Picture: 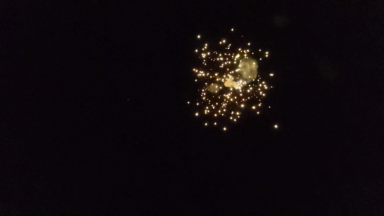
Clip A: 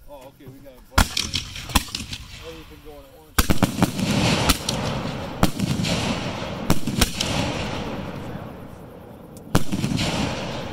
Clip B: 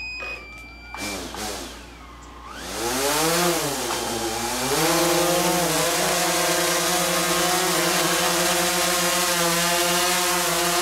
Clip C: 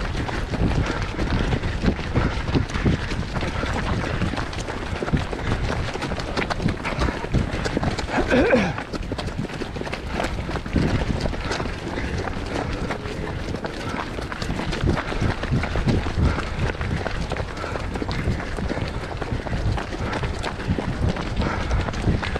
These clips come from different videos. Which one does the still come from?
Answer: A